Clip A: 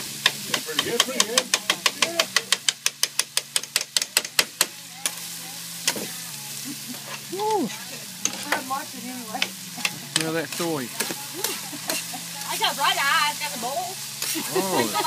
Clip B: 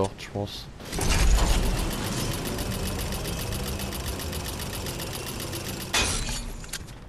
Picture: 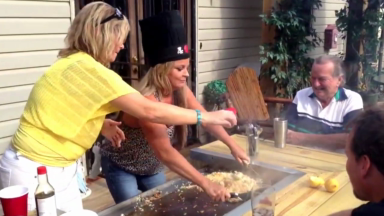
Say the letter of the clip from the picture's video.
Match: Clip A